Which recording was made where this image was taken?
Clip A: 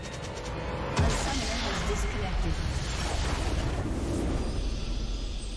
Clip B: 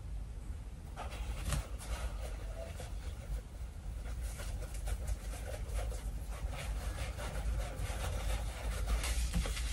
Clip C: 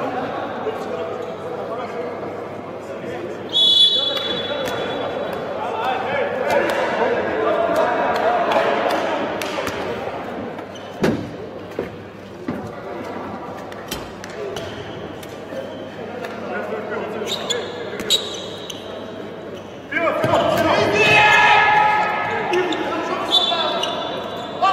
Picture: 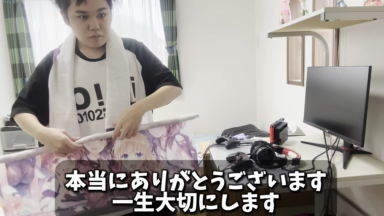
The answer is B